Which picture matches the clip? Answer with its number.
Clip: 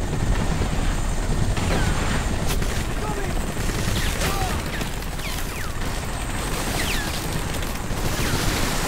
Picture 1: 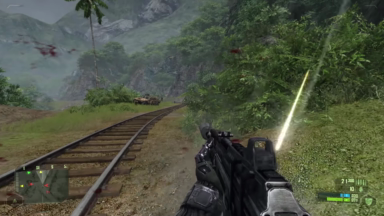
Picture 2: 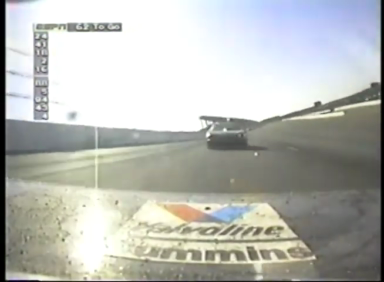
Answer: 1